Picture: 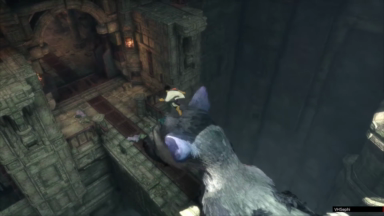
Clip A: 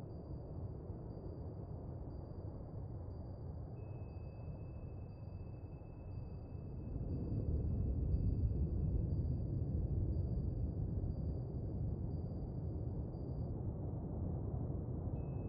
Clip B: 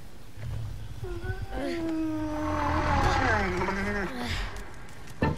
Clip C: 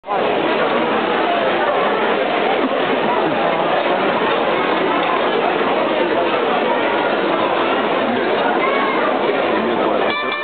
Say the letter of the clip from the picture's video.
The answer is B